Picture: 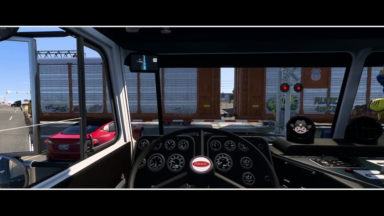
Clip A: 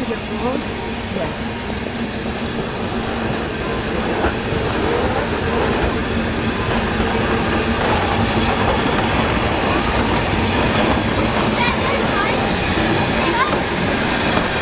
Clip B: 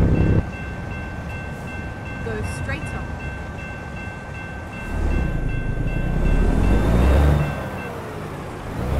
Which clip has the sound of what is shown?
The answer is B